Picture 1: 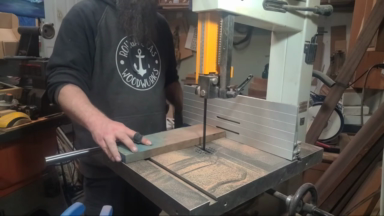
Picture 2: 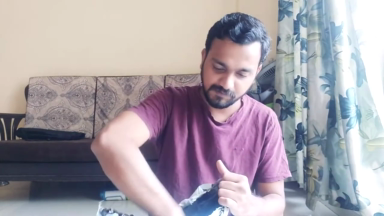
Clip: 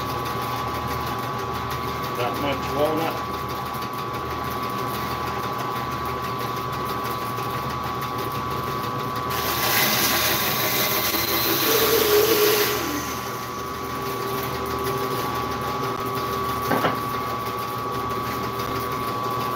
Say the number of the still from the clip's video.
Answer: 1